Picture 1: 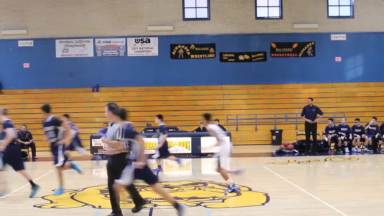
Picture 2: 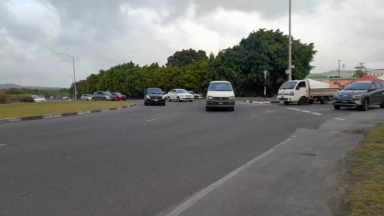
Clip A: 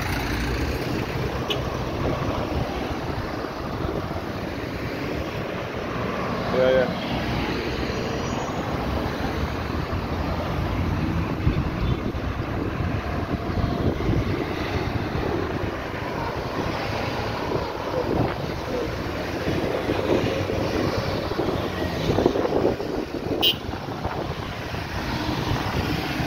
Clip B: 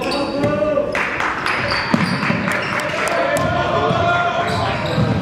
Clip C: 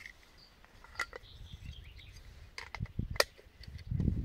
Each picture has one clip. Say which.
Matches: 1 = B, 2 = A